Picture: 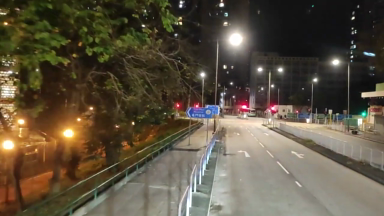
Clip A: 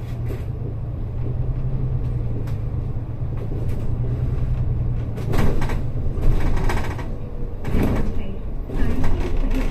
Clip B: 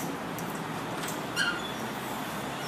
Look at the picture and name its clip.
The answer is A